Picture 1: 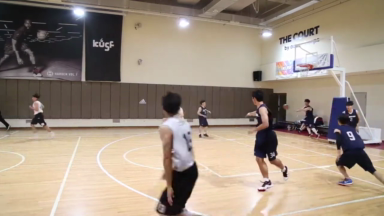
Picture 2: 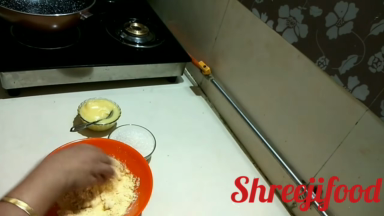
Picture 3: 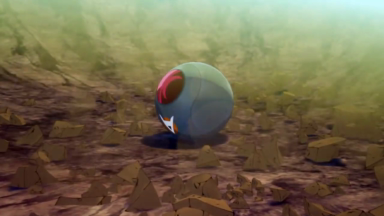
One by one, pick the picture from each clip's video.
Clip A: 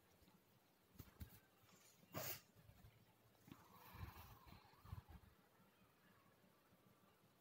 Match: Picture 2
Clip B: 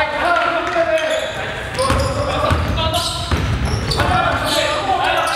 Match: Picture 1